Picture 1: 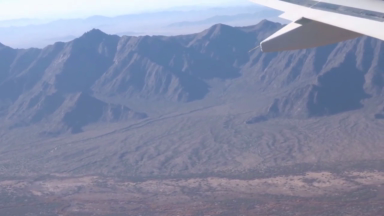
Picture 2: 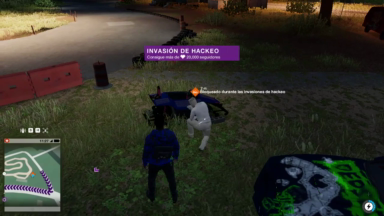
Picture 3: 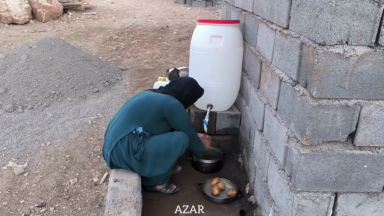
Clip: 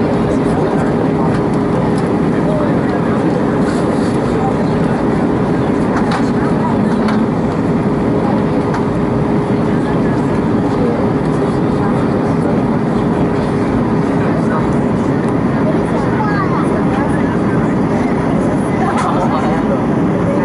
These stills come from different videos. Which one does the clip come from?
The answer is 1